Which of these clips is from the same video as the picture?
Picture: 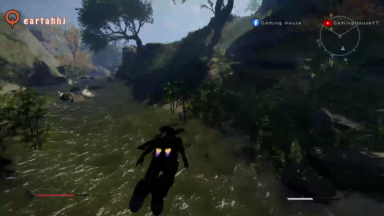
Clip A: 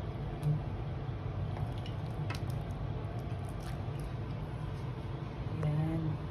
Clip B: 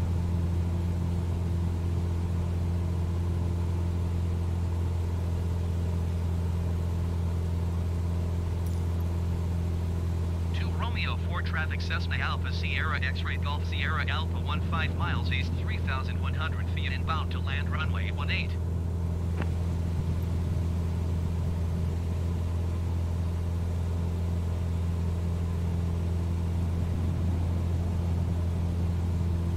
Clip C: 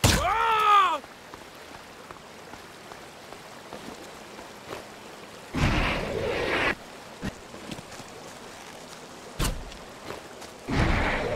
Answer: C